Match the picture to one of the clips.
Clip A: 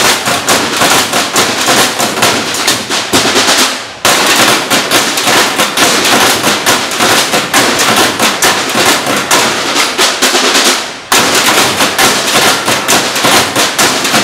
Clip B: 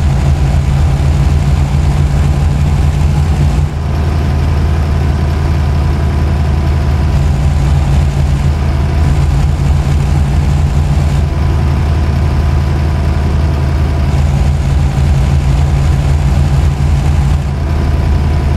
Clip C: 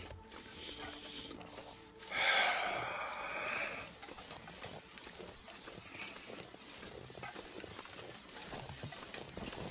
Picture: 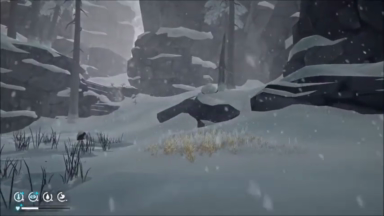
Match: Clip C